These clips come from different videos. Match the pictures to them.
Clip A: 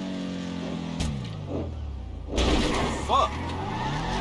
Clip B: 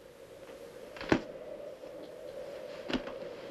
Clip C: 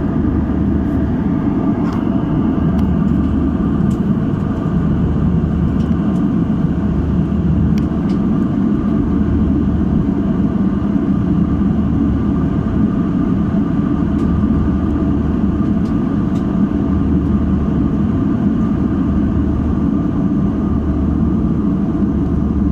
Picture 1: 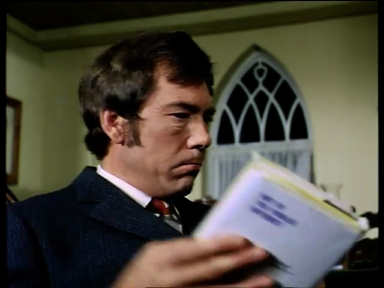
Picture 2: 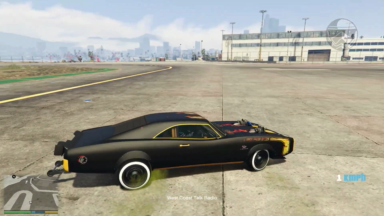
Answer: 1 B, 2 A